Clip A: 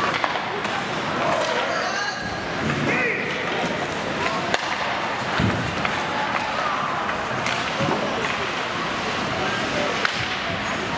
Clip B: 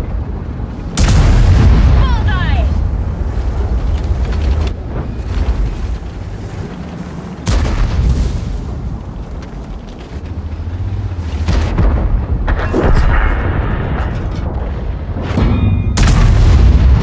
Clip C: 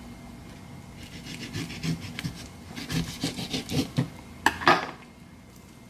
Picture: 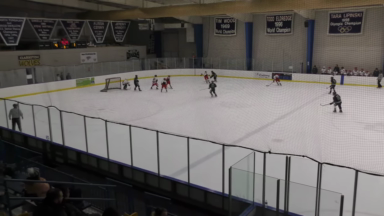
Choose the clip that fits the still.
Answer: A